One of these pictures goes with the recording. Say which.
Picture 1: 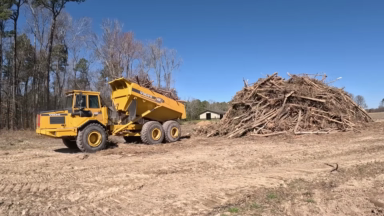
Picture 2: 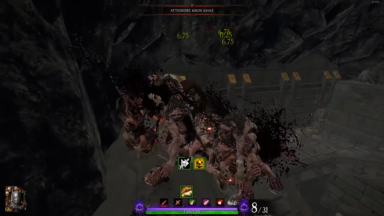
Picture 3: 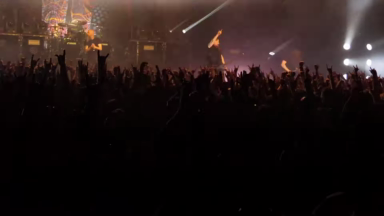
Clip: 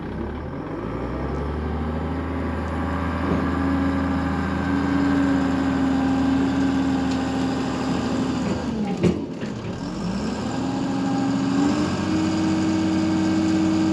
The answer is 1